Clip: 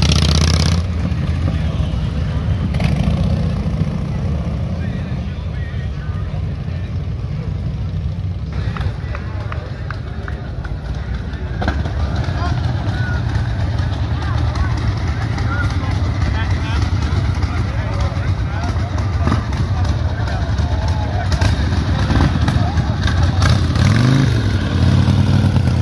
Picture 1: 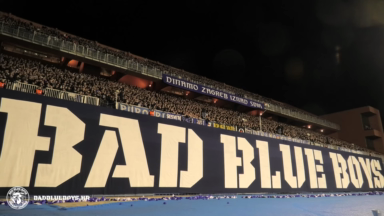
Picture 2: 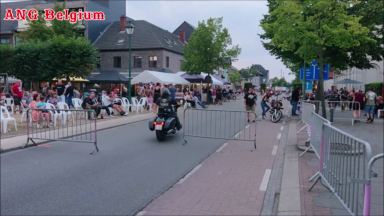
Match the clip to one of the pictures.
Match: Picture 2